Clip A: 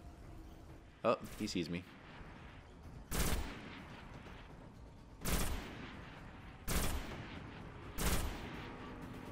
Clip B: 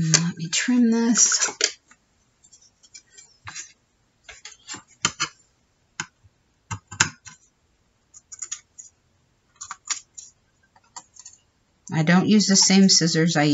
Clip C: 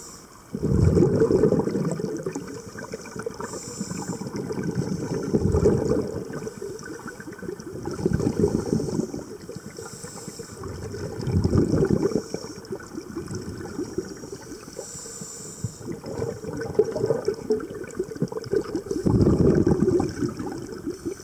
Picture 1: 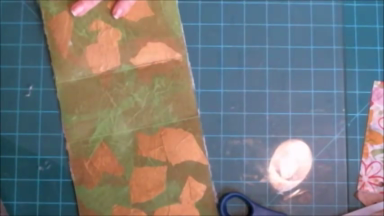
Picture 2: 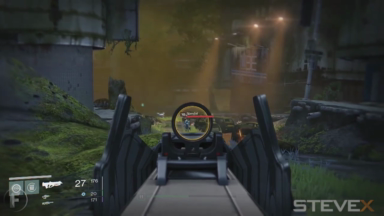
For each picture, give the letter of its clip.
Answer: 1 B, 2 A